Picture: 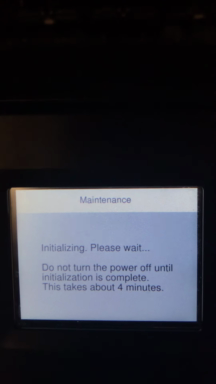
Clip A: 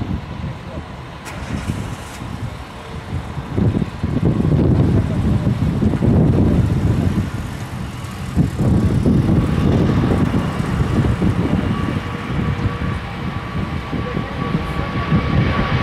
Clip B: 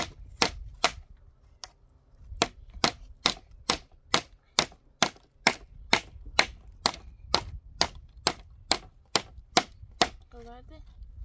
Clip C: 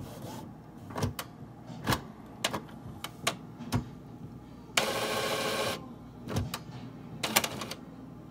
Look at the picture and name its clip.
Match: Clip C